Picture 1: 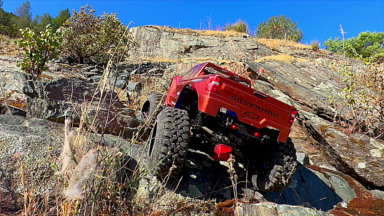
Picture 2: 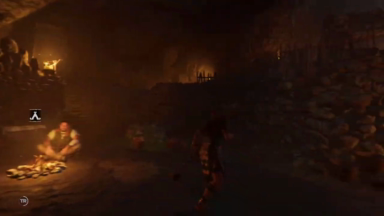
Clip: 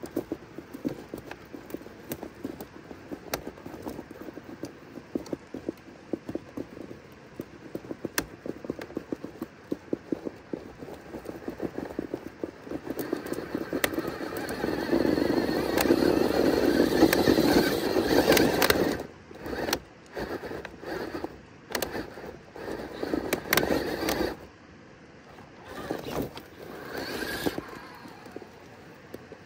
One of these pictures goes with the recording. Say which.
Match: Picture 1